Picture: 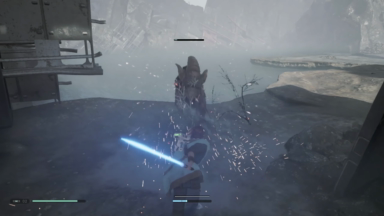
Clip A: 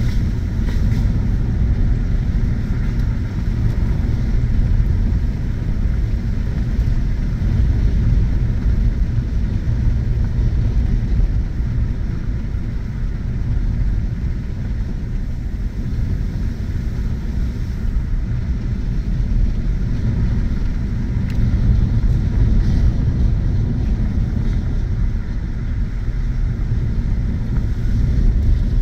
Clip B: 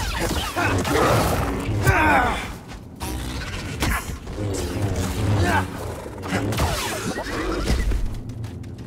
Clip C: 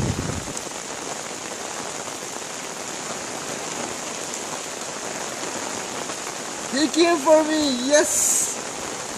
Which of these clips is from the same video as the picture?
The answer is B